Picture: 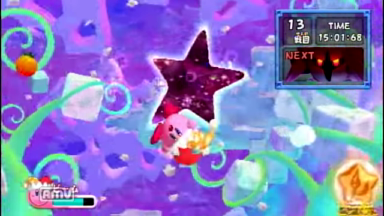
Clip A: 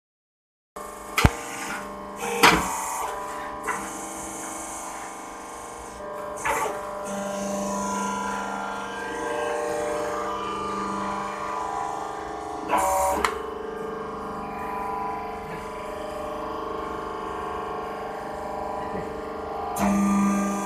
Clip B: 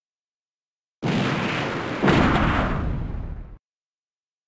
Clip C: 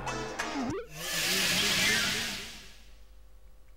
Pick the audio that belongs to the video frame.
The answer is C